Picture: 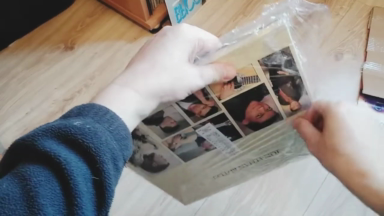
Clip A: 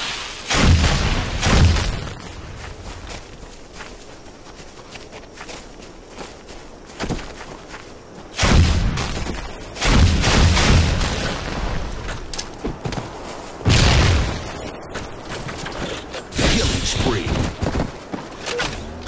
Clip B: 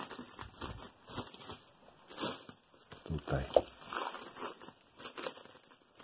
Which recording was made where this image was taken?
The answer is B